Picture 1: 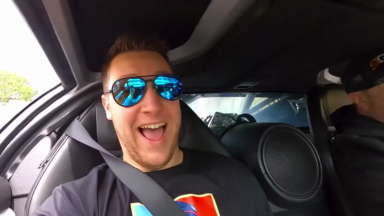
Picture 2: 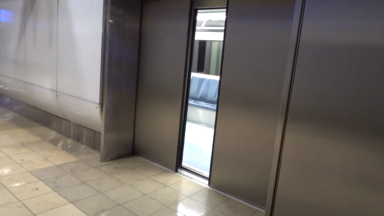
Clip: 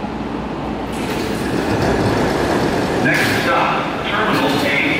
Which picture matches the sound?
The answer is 2